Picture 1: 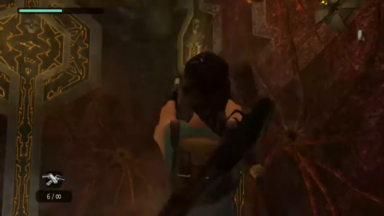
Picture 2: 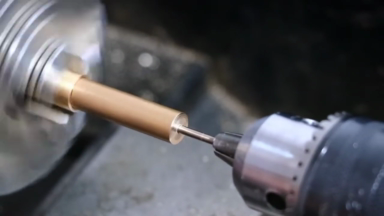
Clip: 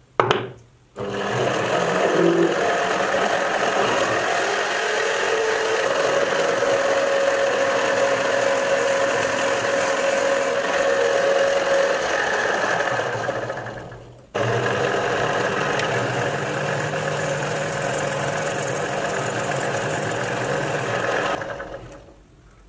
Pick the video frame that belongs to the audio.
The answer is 2